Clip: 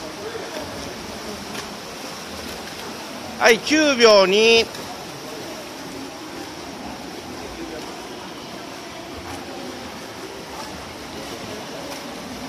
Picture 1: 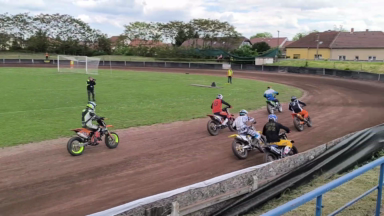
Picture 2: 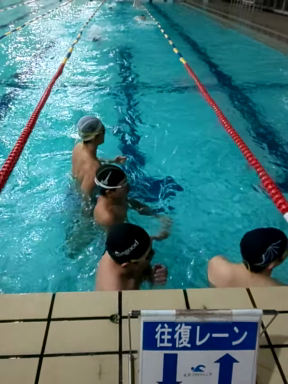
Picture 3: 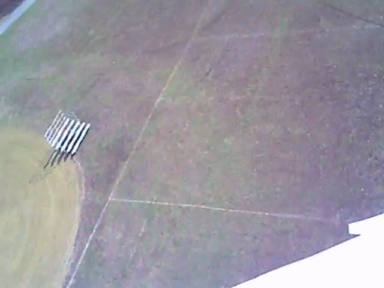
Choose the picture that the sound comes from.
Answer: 2